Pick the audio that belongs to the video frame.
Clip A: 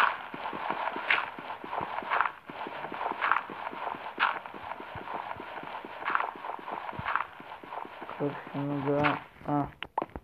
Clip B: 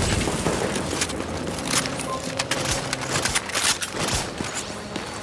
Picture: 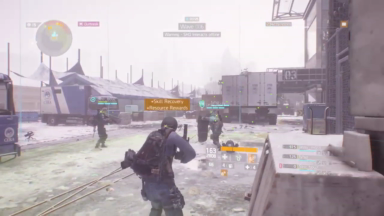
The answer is B